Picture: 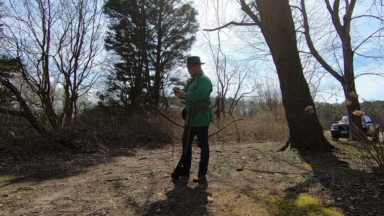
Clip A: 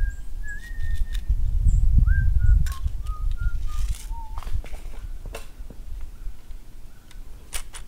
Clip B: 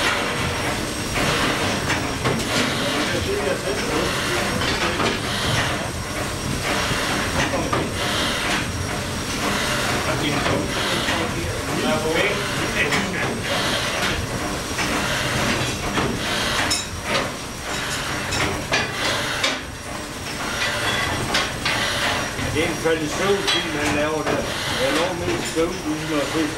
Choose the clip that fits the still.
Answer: A